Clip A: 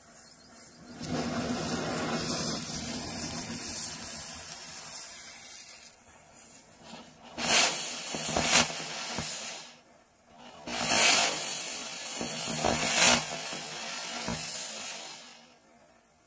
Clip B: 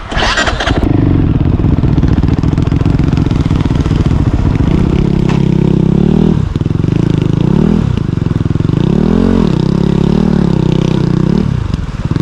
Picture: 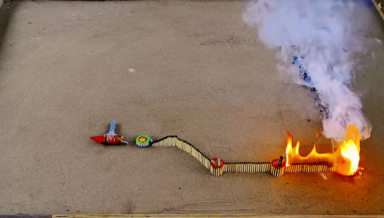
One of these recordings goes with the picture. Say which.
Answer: A